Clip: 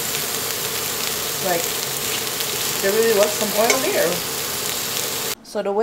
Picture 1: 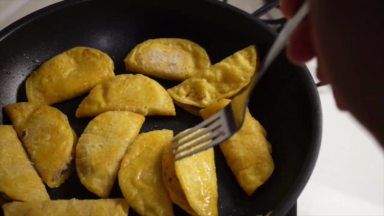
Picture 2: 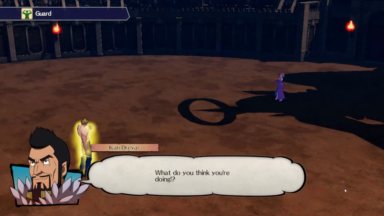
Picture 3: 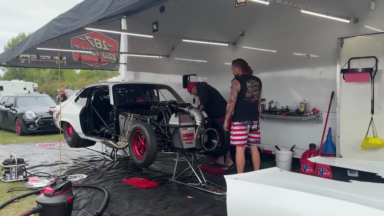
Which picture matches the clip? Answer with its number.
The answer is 1